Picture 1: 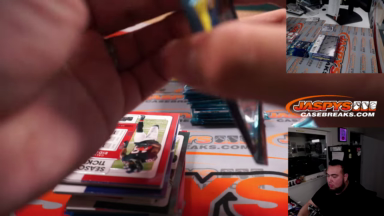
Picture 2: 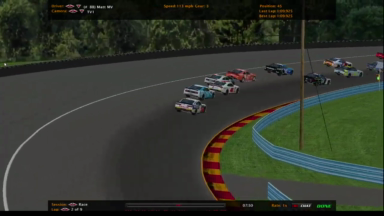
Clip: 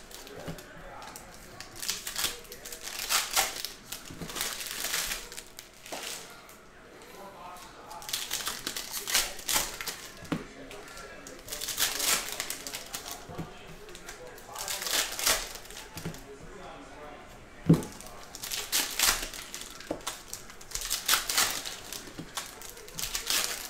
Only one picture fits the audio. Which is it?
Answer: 1